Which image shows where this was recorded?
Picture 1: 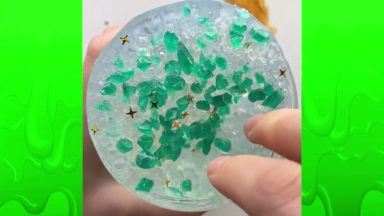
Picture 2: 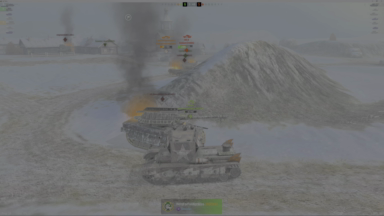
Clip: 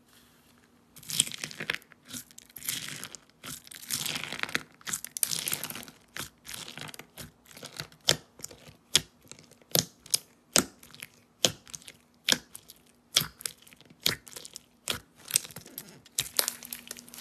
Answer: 1